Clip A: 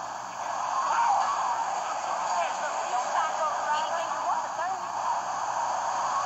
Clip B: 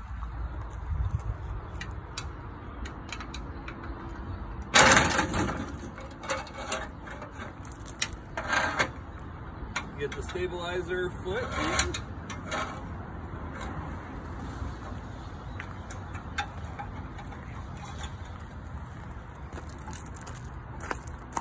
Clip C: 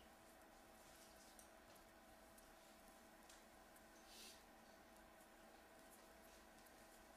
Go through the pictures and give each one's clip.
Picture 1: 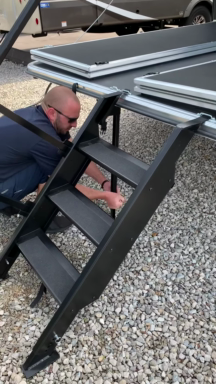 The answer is B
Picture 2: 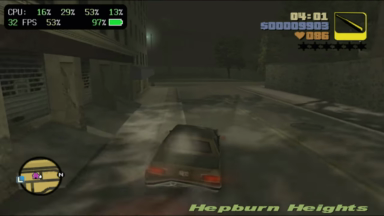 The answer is A